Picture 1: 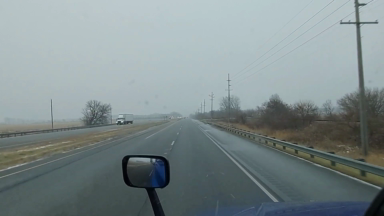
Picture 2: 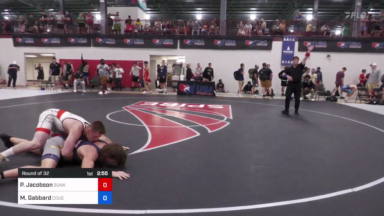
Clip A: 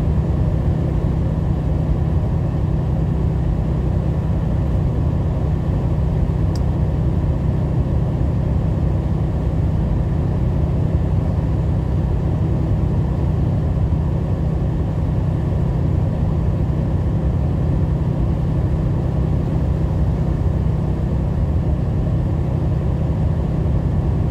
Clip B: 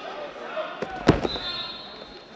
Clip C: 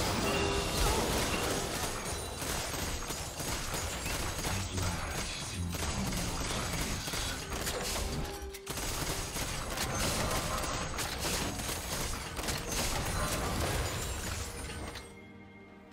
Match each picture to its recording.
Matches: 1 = A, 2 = B